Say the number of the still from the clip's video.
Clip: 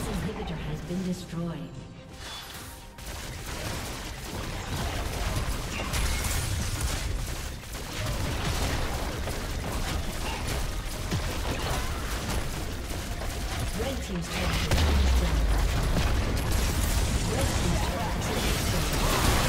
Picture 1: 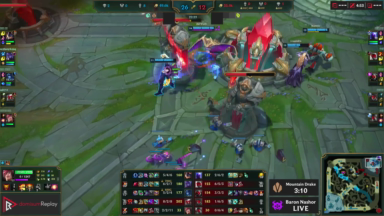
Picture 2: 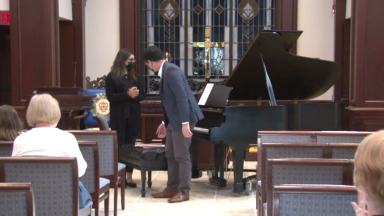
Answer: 1